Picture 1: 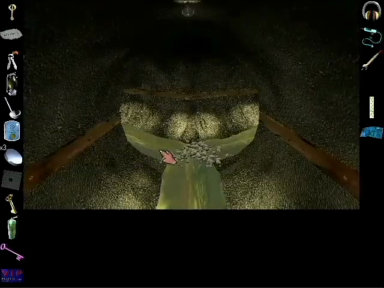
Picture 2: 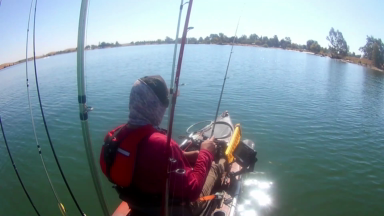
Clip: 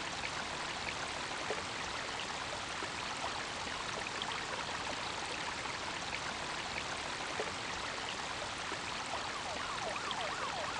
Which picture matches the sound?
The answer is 1